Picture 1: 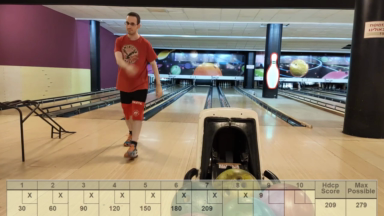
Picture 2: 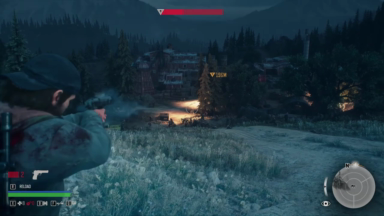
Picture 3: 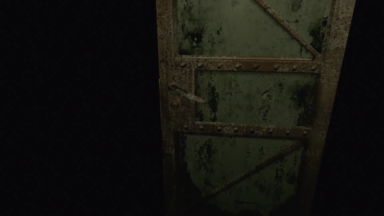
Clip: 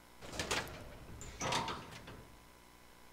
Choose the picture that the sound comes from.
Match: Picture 3